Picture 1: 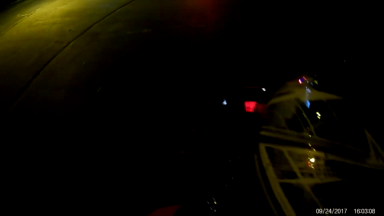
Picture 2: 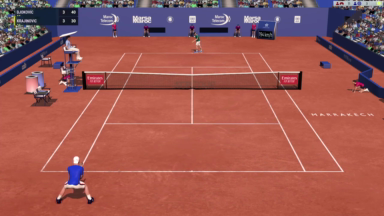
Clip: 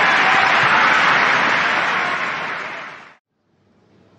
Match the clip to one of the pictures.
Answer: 2